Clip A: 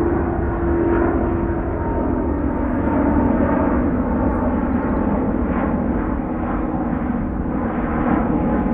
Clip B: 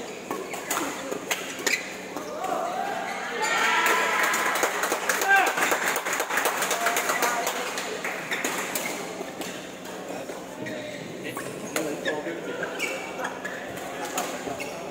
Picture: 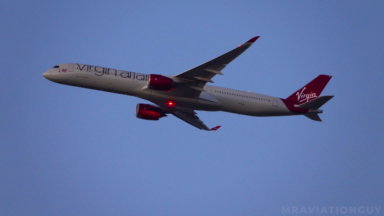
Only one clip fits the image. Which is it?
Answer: A